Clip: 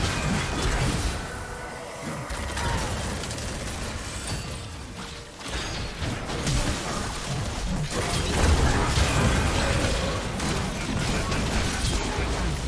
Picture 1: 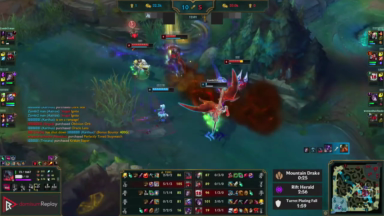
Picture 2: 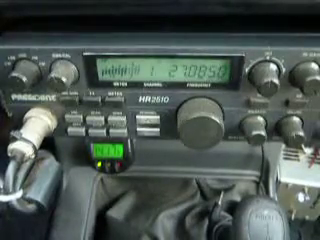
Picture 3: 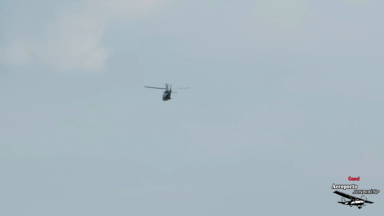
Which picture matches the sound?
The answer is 1